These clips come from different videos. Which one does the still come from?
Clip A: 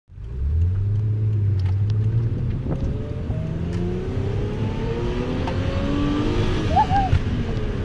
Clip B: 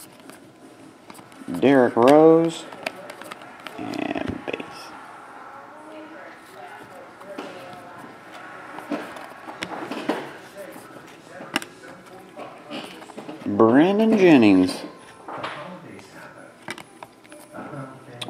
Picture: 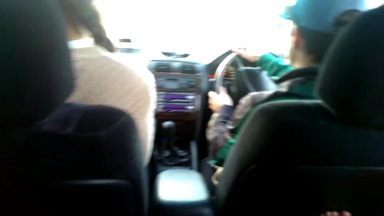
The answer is A